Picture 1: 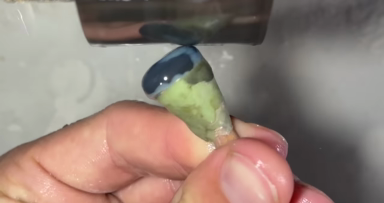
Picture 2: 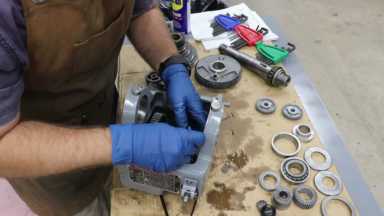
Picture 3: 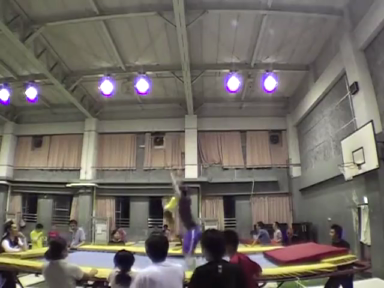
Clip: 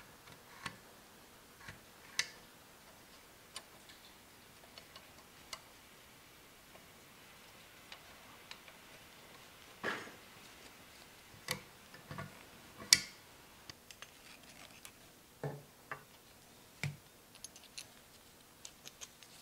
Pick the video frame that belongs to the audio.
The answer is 2